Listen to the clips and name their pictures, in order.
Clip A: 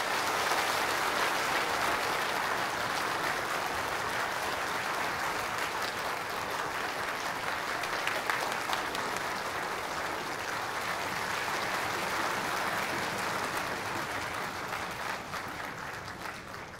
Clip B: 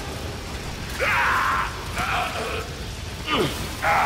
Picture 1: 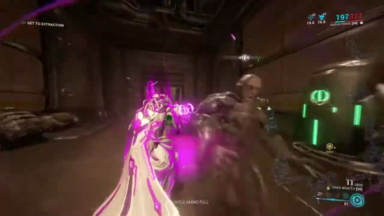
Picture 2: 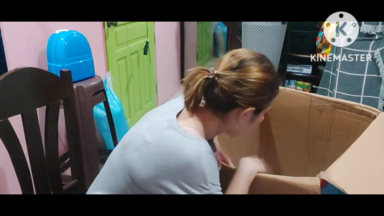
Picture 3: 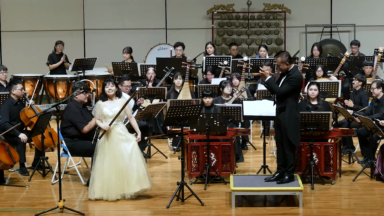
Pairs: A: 3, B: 1